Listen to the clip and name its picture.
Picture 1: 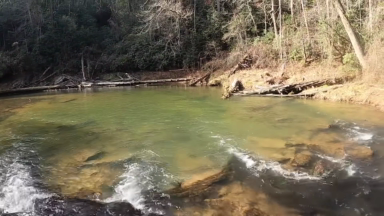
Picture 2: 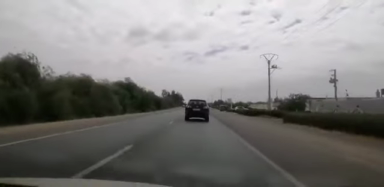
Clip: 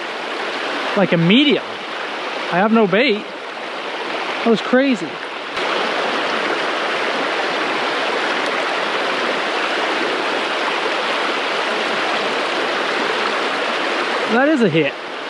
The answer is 1